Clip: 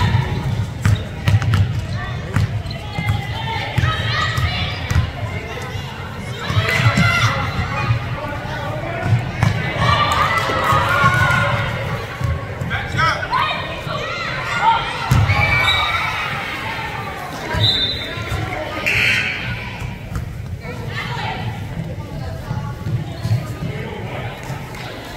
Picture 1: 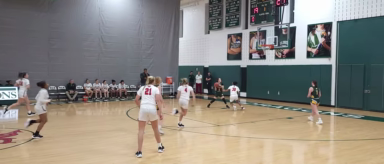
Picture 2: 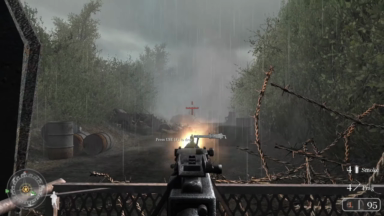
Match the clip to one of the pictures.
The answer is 1